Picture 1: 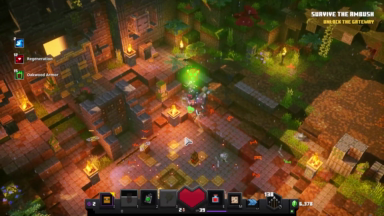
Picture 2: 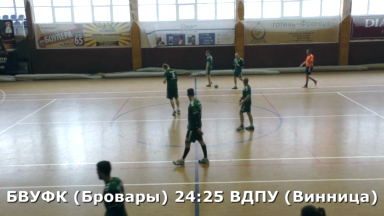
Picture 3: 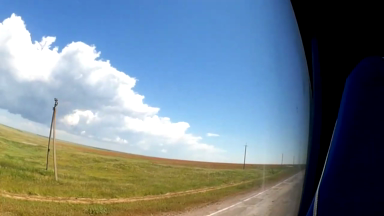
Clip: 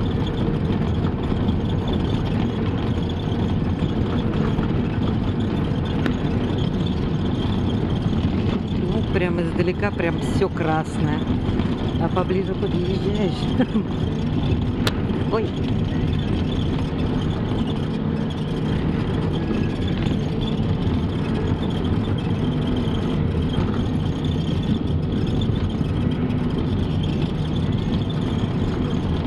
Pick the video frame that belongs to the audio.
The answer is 3